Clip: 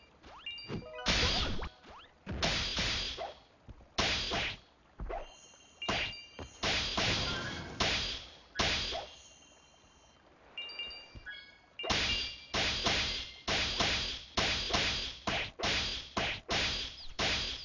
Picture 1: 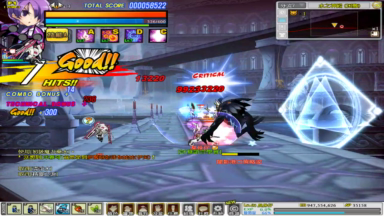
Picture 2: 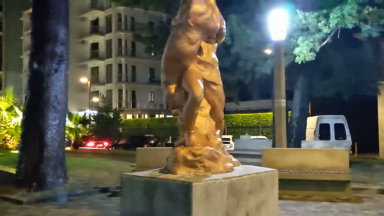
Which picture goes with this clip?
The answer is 1